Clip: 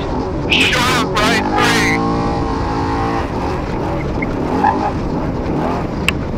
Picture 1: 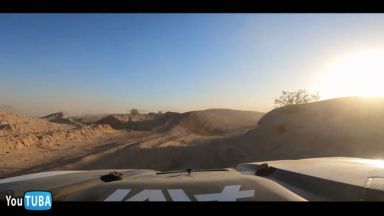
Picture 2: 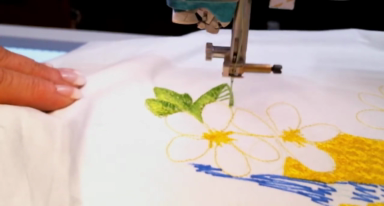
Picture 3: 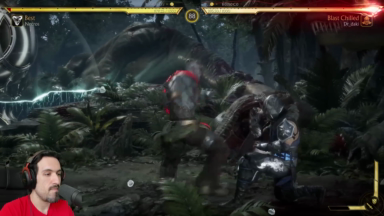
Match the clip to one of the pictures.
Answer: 1